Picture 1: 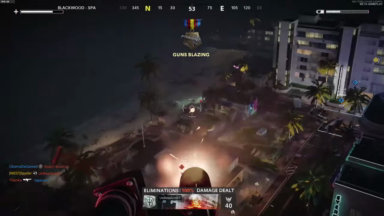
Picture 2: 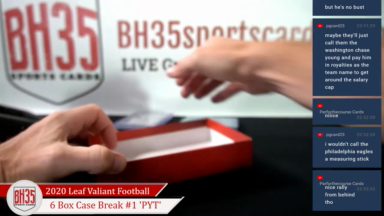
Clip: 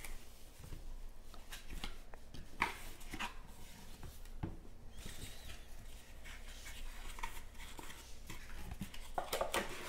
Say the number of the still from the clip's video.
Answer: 2